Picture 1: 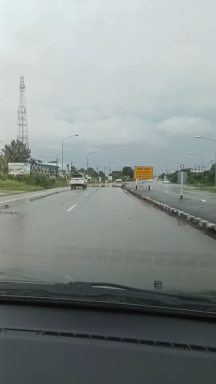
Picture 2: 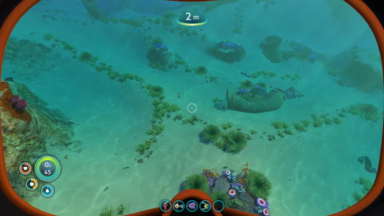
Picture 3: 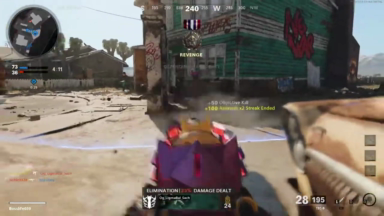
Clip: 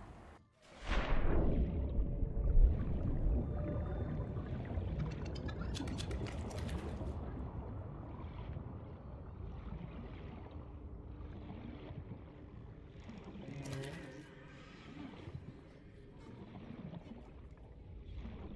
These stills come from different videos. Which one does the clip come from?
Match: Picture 2